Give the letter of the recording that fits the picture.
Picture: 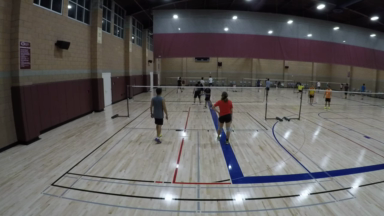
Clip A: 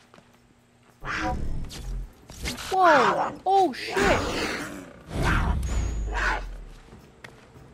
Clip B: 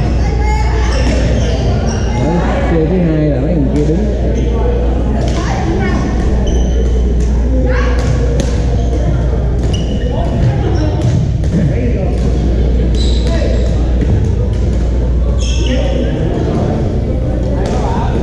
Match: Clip B